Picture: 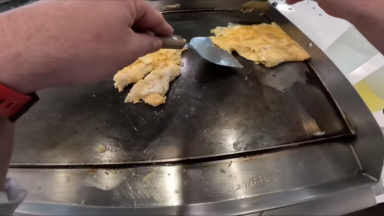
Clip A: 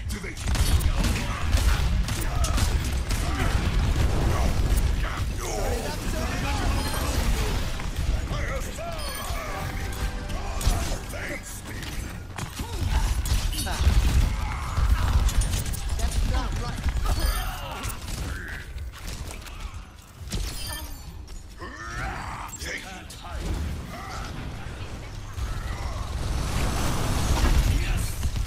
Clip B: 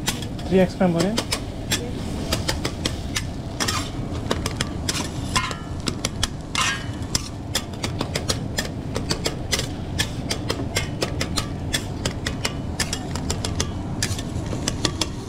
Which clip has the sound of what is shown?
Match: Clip B